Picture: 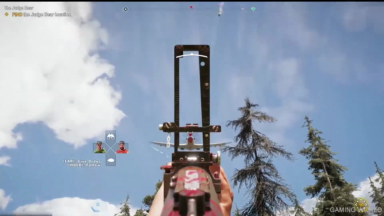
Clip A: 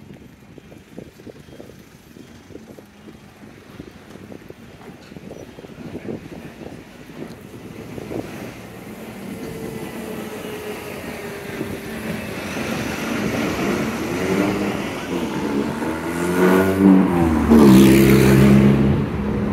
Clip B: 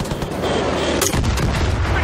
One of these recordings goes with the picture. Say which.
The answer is B